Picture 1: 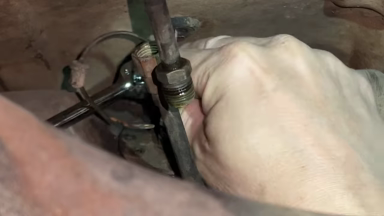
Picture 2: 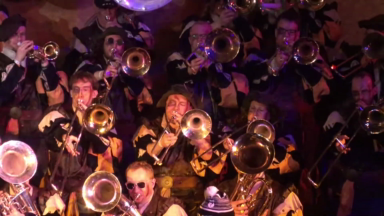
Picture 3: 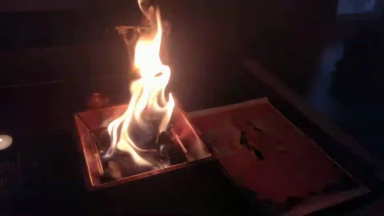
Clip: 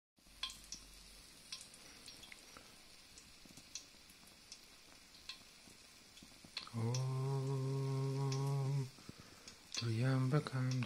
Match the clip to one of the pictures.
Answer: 3